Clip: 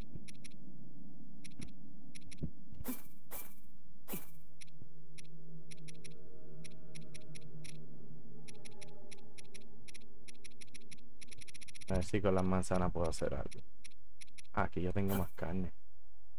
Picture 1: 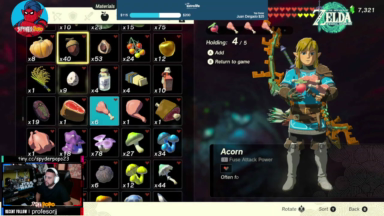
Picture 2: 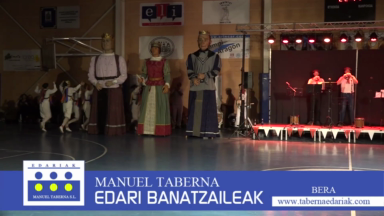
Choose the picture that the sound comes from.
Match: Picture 1